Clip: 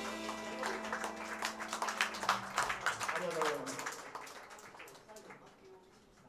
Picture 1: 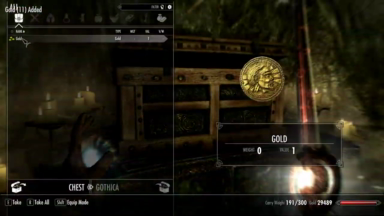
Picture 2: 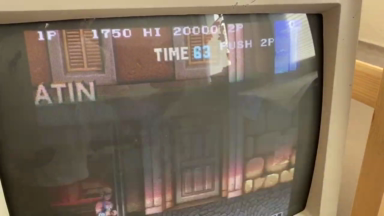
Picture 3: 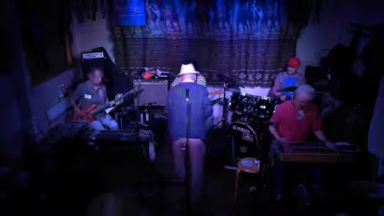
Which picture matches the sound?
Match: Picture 3